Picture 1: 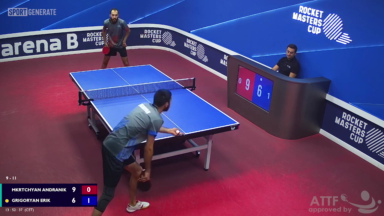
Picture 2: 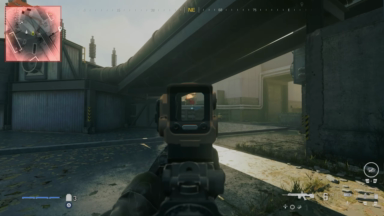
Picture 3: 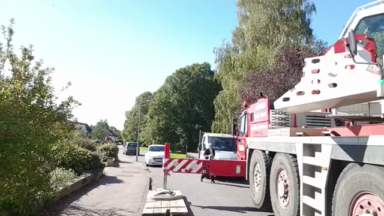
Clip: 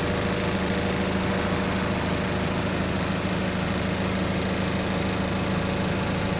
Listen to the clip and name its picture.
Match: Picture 3